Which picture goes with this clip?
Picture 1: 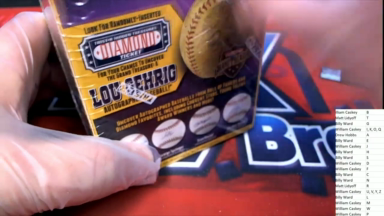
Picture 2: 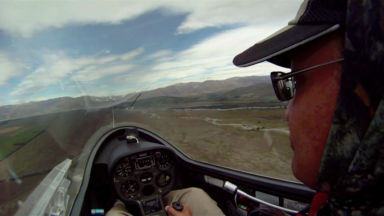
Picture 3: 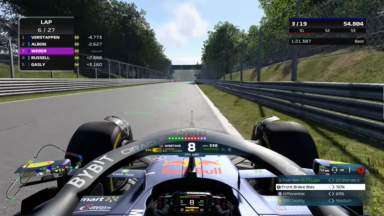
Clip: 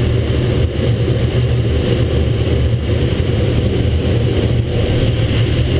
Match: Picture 2